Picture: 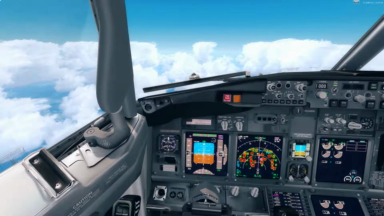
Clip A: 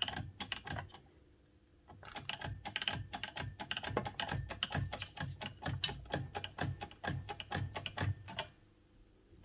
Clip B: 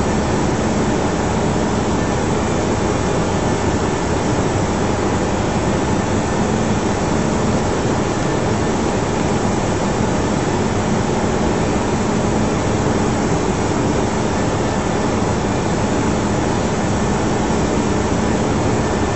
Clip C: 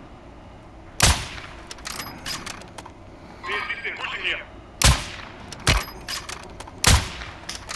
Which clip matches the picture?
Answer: B